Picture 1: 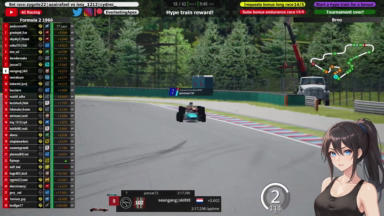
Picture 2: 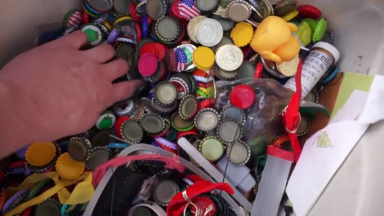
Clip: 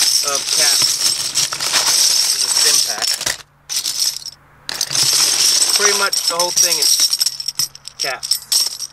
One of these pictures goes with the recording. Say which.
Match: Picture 2